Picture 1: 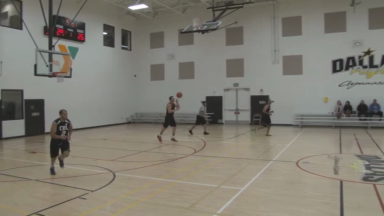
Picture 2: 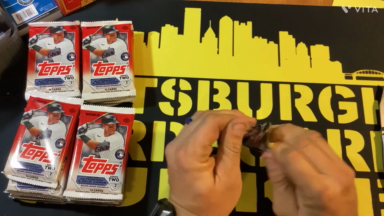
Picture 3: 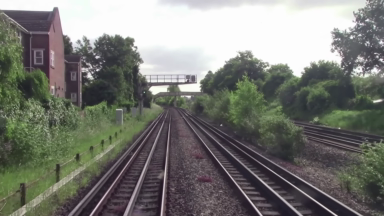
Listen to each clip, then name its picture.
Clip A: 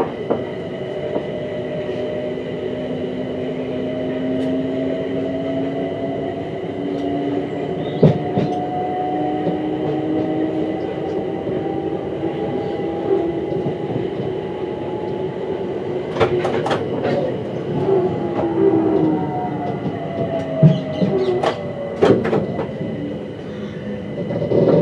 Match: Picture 3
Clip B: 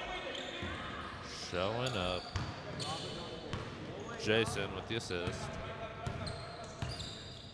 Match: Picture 1